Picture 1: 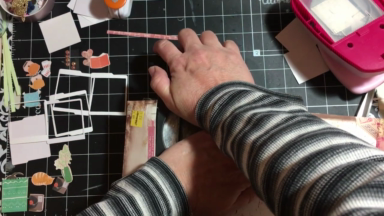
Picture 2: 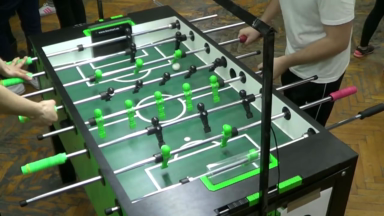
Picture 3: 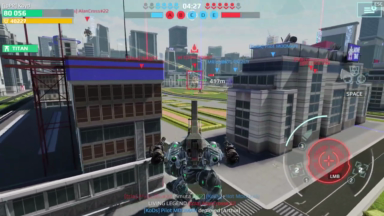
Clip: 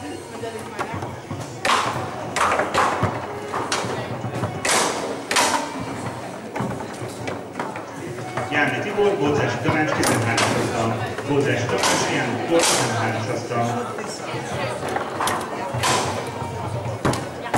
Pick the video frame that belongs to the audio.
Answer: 2